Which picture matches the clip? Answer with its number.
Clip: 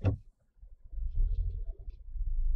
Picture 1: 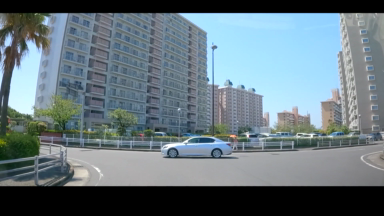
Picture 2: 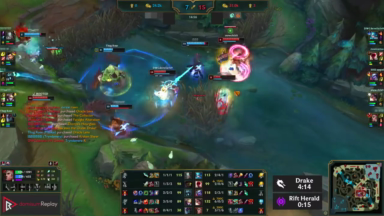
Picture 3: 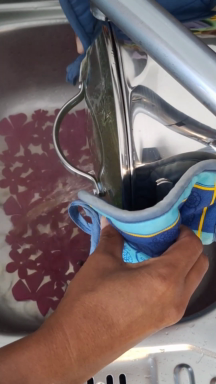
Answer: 1